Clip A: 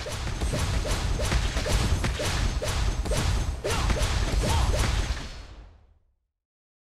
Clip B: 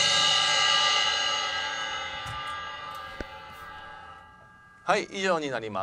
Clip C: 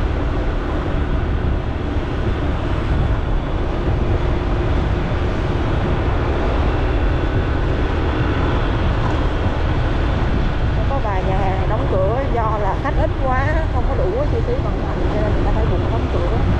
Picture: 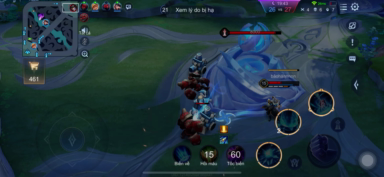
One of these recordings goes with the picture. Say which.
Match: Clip A